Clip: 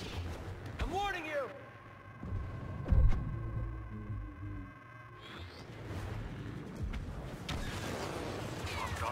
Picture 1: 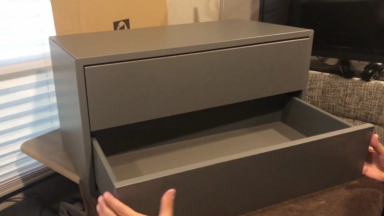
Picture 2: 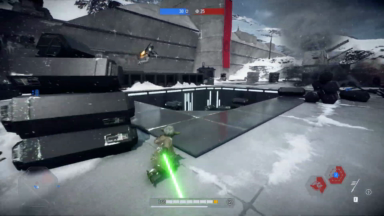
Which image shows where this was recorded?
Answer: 2